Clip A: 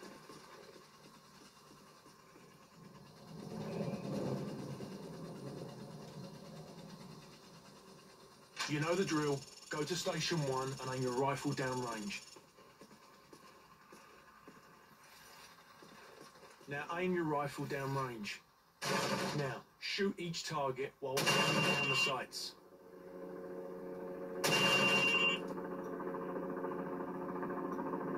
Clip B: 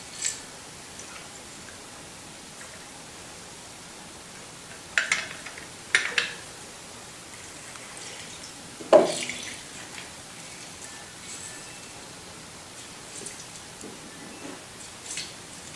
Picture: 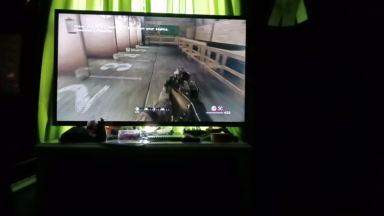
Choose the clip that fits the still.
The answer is A